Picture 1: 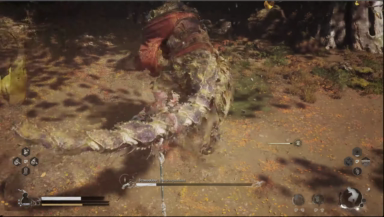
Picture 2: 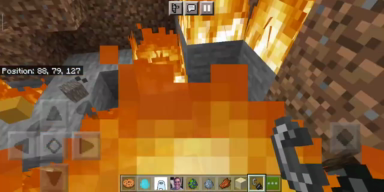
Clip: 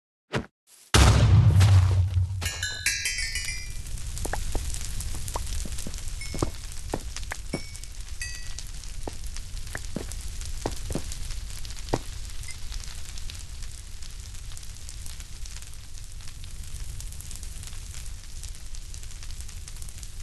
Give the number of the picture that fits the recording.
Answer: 2